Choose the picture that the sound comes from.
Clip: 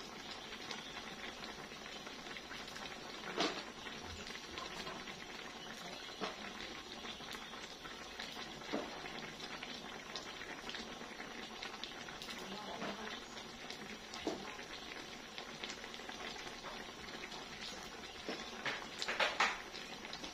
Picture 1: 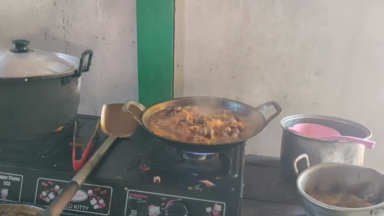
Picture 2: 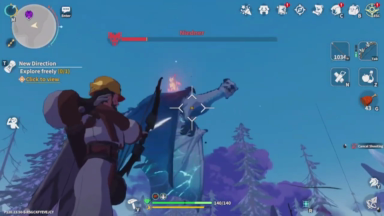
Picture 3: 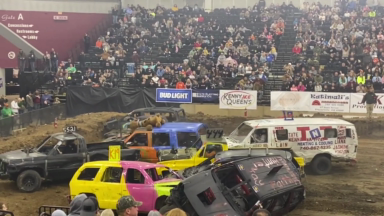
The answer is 1